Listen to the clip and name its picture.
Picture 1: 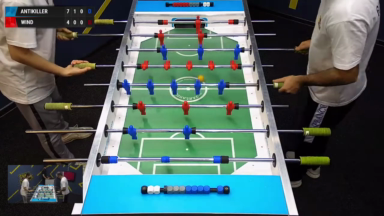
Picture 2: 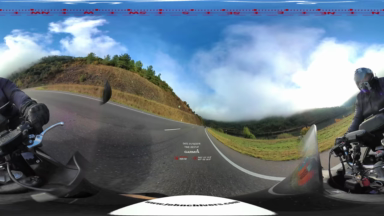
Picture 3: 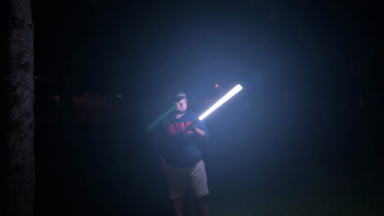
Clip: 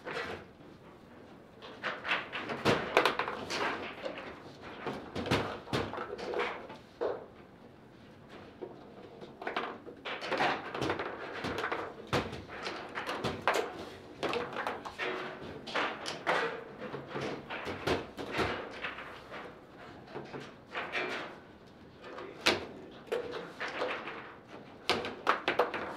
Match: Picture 1